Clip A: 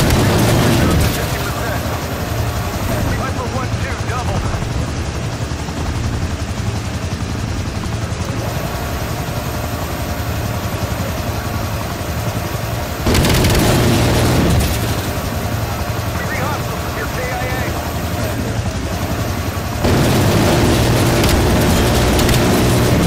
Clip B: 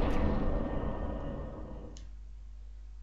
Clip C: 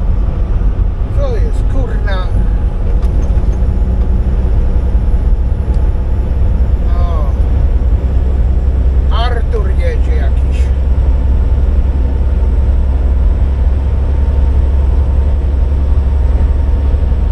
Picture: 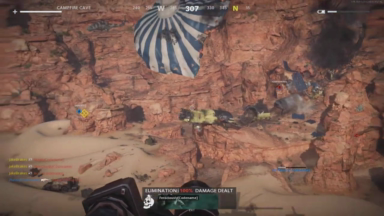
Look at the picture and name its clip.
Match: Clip A